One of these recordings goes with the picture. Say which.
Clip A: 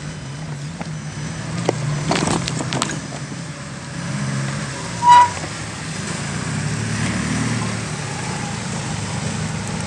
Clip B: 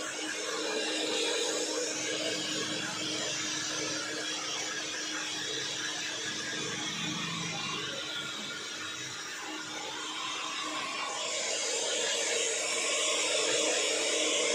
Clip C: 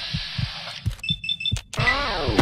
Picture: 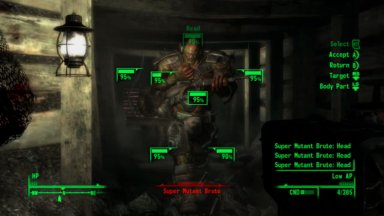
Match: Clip C